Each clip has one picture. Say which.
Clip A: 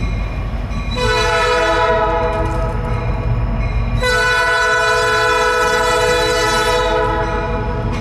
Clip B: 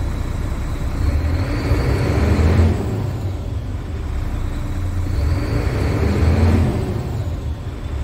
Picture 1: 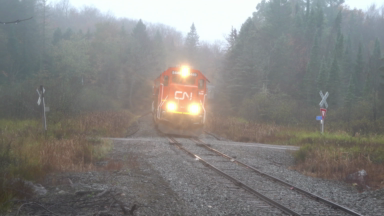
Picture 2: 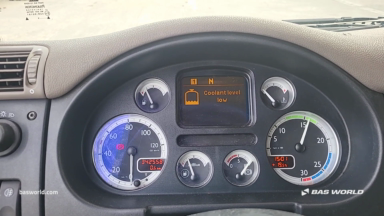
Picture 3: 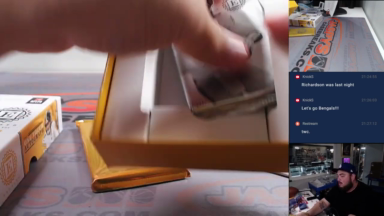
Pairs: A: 1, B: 2